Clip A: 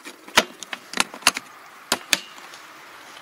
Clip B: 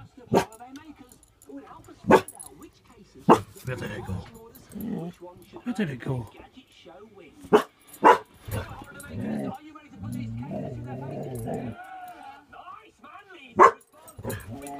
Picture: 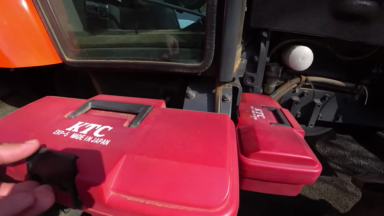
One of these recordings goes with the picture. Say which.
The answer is A